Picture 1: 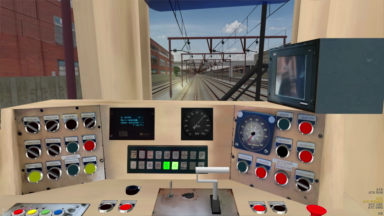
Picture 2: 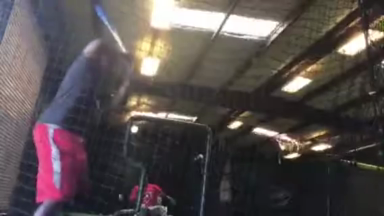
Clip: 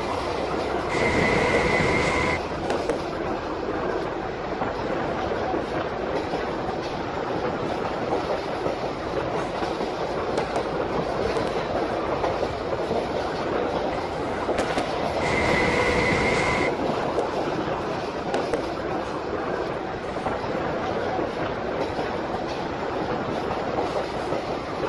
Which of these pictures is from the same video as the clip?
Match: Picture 1